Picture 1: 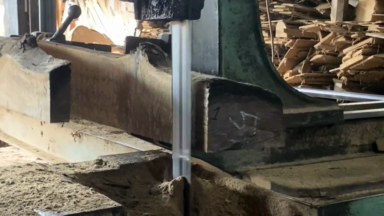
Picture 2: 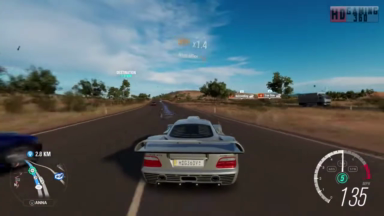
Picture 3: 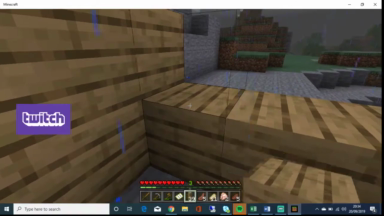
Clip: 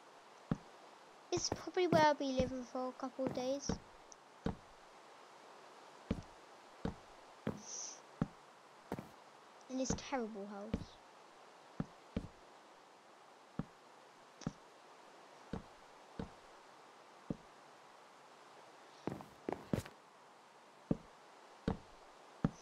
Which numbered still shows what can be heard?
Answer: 3